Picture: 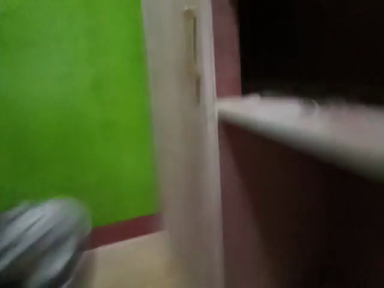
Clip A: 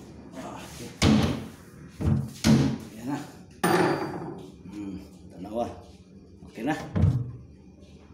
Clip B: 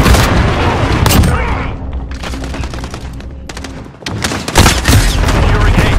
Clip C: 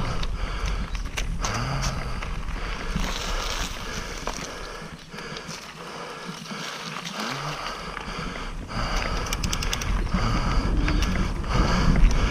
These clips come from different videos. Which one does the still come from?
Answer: A